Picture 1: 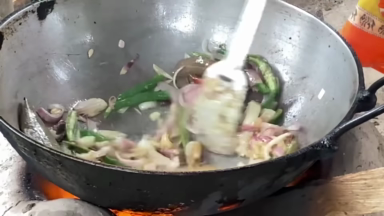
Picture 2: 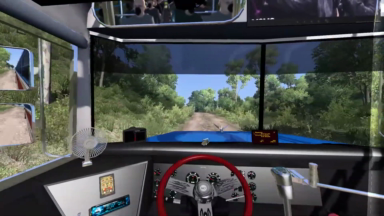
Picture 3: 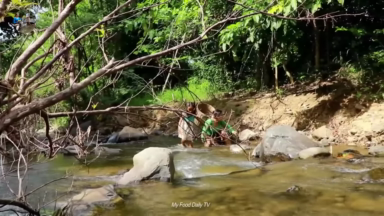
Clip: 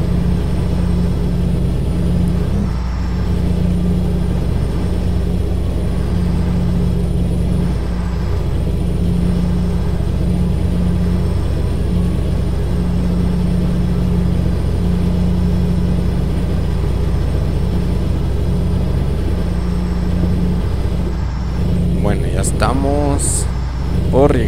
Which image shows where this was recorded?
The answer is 2